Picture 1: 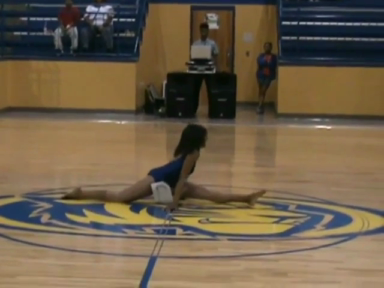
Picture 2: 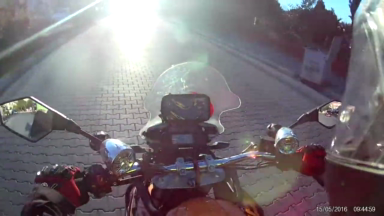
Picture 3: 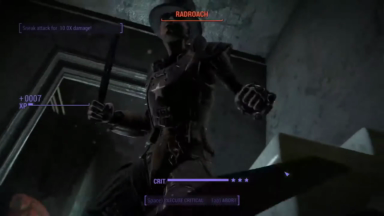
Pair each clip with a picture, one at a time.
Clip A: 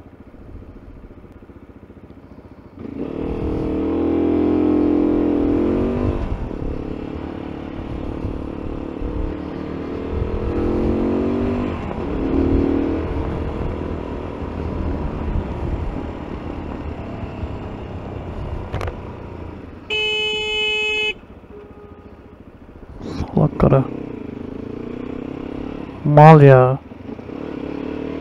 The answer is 2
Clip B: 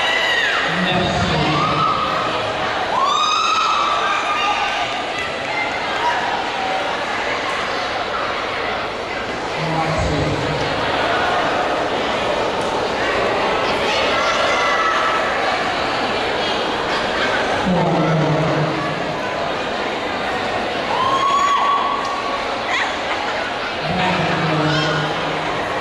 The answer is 1